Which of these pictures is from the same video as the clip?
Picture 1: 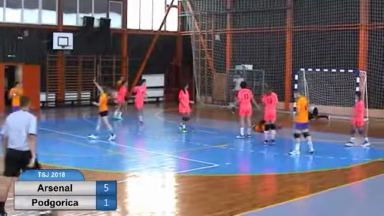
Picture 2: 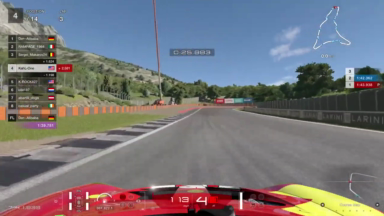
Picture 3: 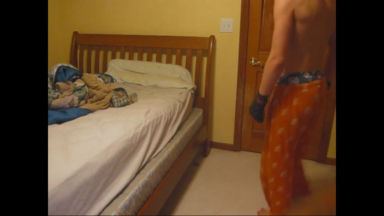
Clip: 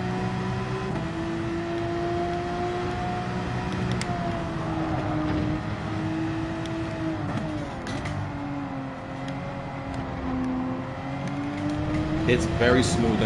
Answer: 2